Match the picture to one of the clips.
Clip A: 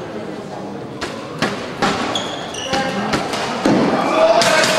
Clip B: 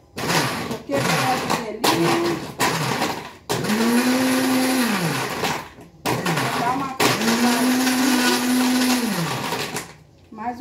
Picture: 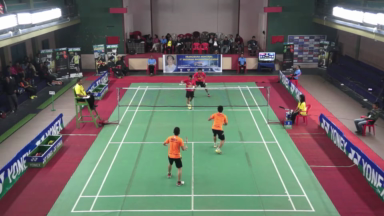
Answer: A